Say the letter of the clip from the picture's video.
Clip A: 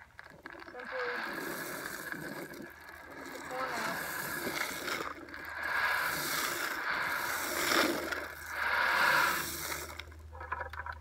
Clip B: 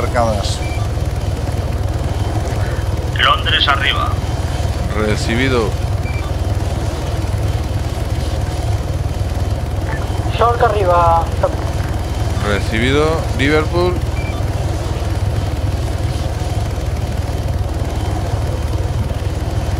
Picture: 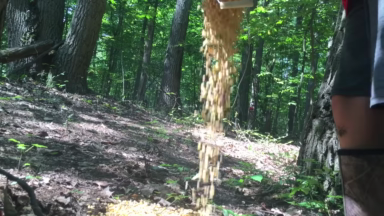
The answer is A